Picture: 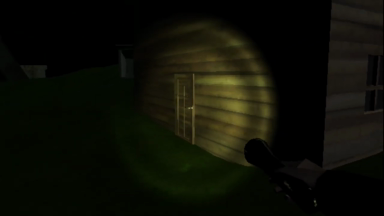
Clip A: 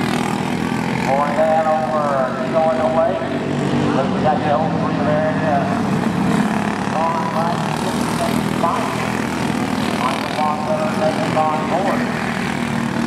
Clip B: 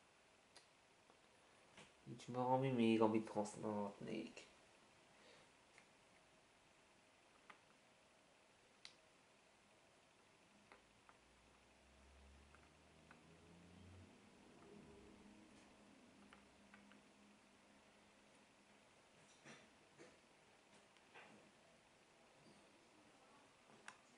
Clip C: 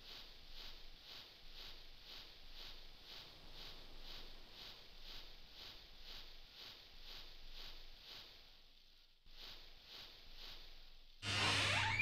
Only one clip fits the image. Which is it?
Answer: C